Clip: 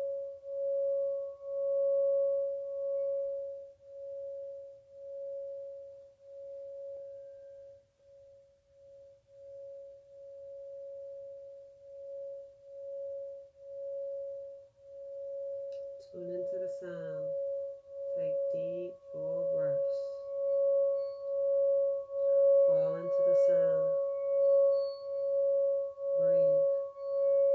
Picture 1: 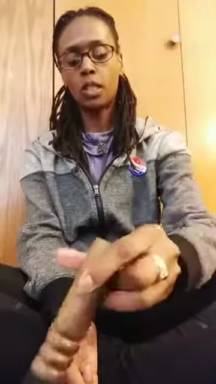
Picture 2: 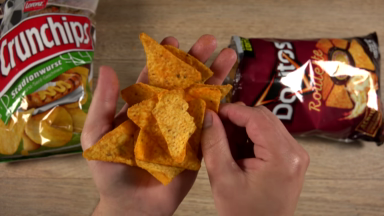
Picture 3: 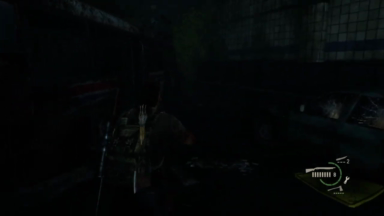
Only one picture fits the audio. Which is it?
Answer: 1